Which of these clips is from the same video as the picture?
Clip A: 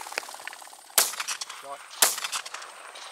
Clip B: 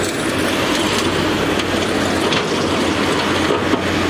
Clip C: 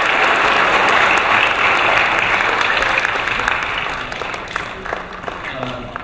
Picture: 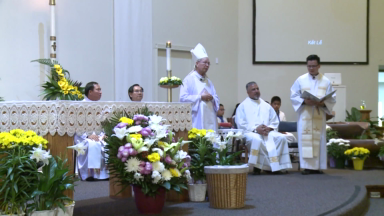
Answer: C